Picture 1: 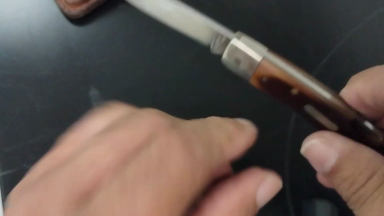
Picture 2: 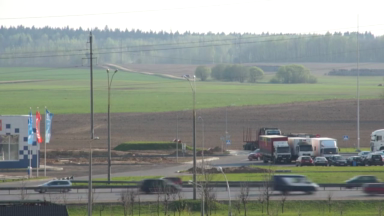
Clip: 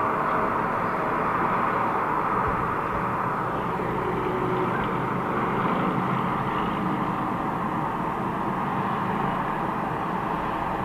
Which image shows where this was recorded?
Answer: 2